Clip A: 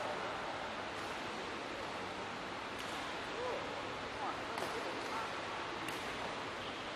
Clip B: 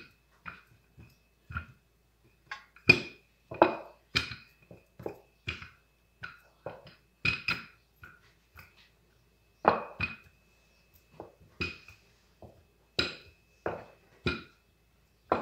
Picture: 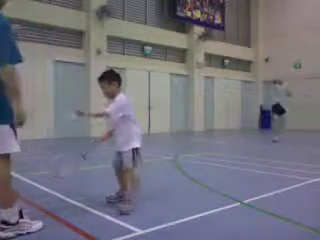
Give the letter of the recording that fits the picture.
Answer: A